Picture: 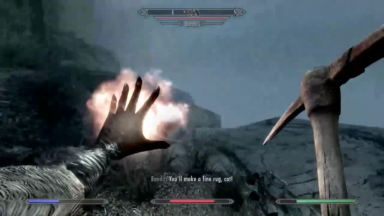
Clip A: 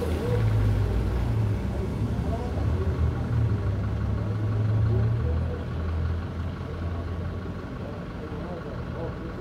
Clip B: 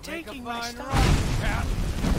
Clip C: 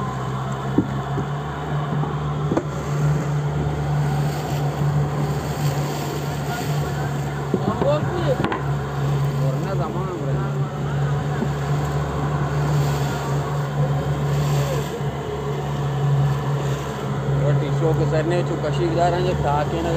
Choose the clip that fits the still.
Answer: B